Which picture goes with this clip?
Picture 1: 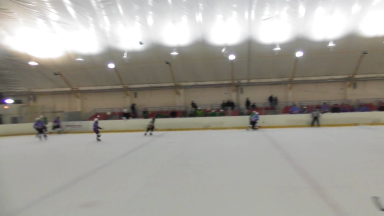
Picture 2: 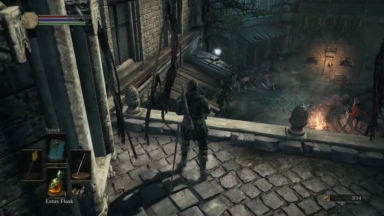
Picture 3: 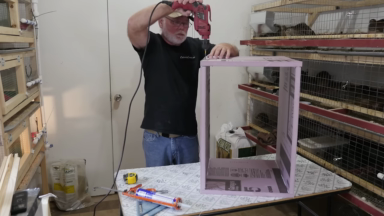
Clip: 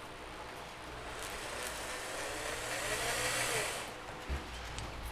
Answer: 3